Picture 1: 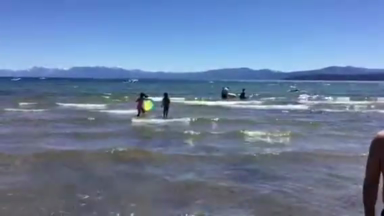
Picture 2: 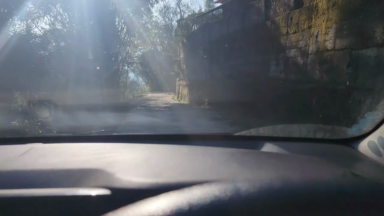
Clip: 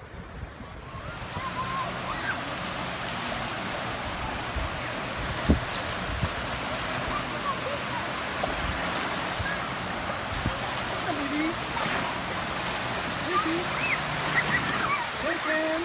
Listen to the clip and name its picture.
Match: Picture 1